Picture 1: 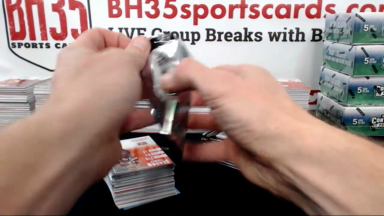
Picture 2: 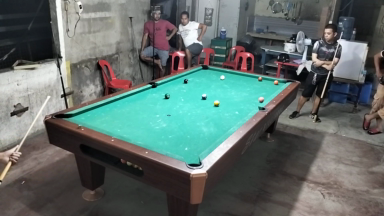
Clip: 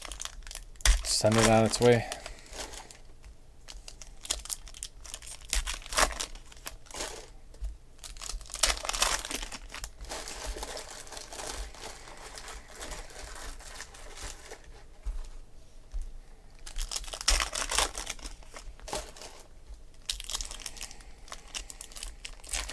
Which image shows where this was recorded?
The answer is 1